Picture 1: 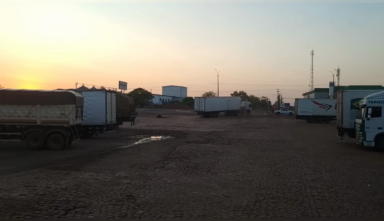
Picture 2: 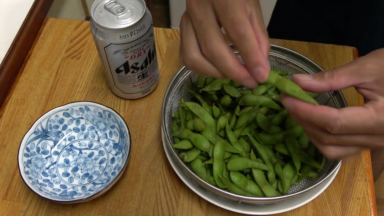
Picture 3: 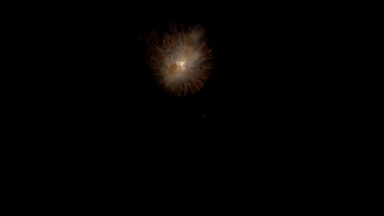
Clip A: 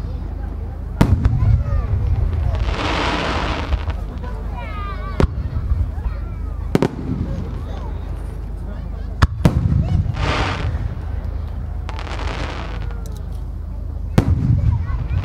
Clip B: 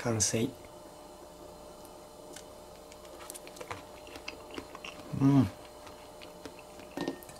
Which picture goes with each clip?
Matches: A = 3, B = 2